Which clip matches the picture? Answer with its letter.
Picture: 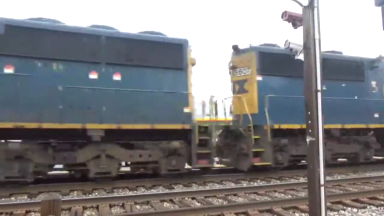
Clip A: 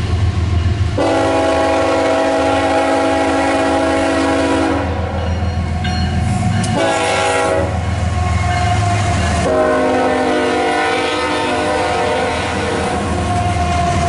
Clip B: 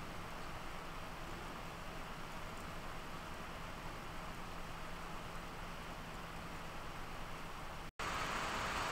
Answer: A